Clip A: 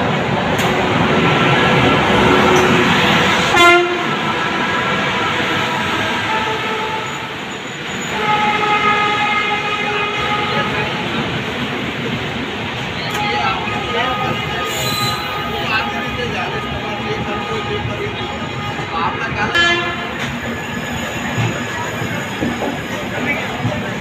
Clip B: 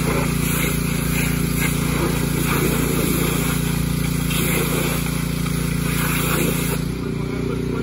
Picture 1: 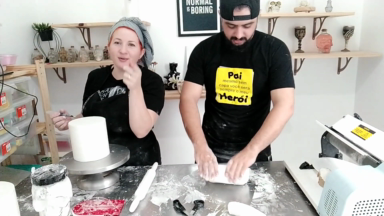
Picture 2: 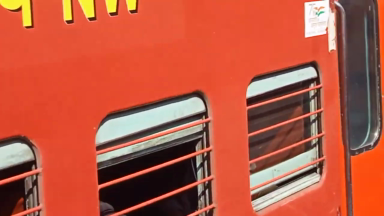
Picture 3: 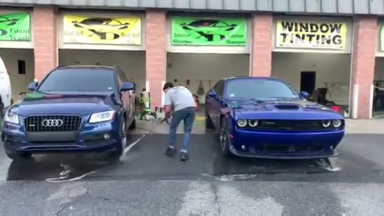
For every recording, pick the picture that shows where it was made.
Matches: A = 2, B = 3